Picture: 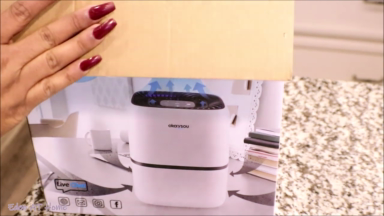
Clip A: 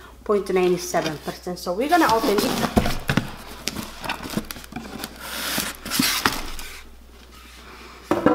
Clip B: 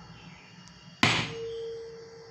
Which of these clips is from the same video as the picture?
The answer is A